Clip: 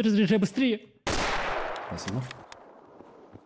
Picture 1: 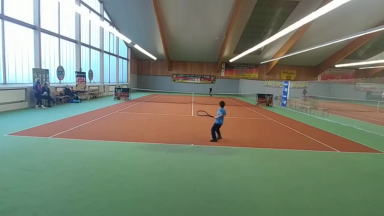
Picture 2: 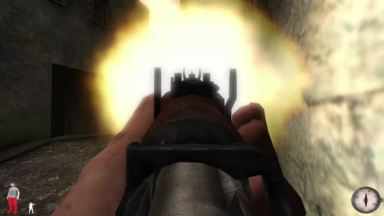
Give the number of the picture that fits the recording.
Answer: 2